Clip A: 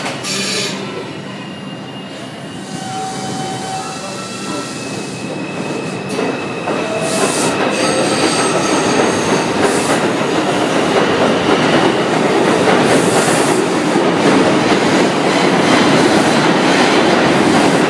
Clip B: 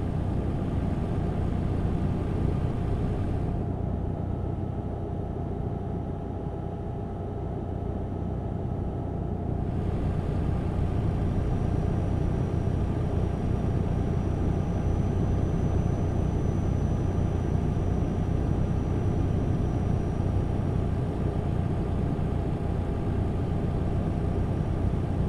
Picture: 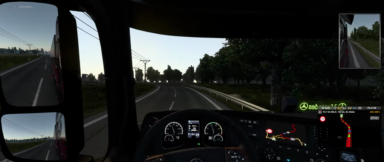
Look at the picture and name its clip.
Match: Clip B